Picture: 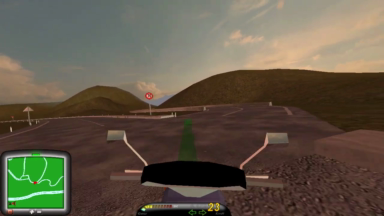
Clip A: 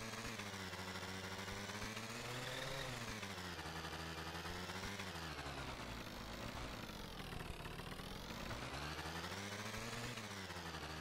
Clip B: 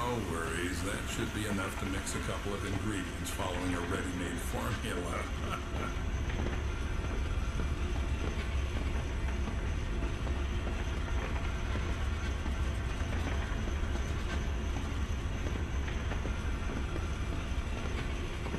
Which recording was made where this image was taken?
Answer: A